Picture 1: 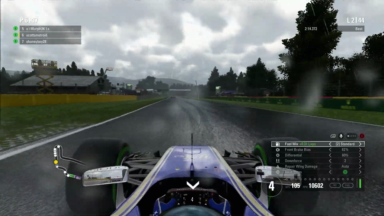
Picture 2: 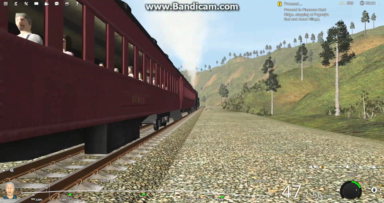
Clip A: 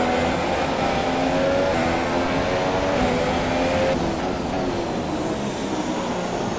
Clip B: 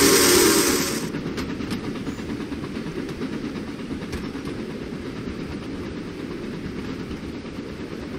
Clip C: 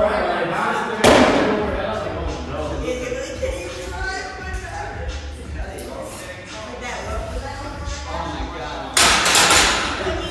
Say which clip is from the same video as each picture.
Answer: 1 A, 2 B